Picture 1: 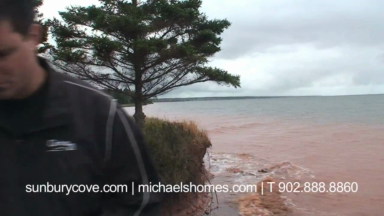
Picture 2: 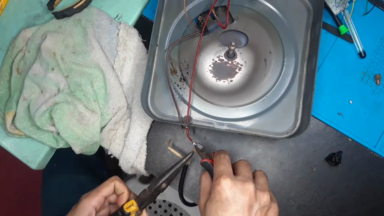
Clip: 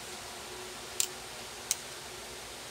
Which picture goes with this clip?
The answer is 2